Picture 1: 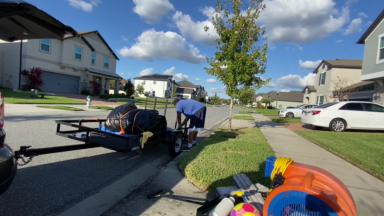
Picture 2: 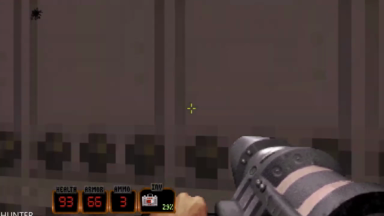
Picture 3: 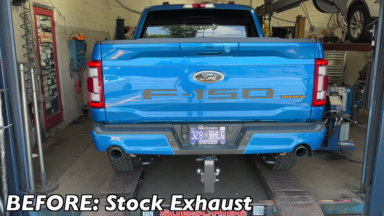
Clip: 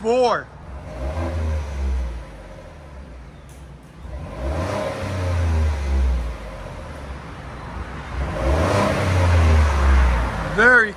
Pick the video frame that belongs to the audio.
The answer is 3